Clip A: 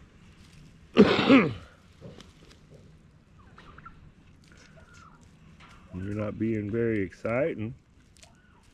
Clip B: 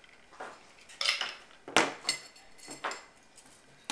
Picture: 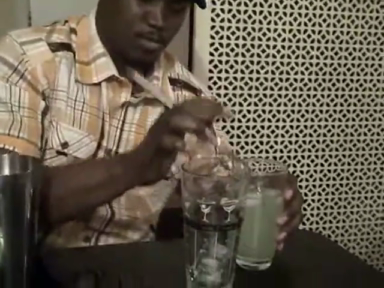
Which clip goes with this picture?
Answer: B